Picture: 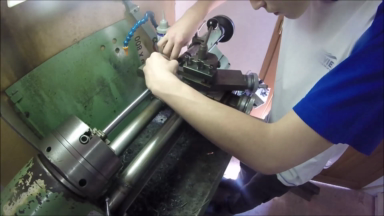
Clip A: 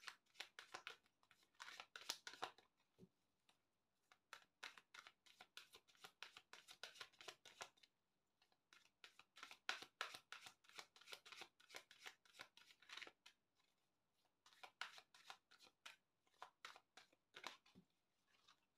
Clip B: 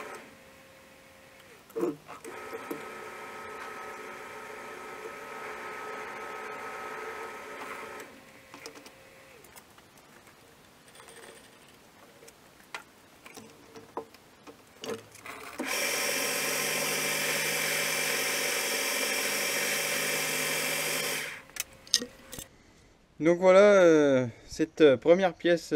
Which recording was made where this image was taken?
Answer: B